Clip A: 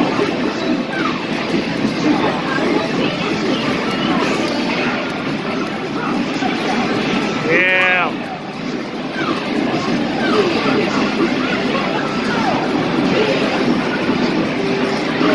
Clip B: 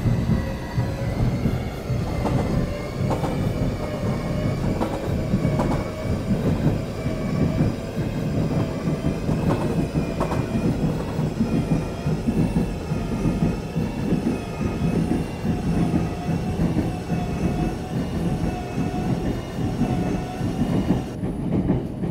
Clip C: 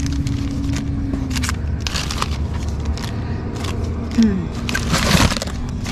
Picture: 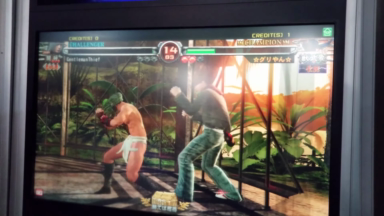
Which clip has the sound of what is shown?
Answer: A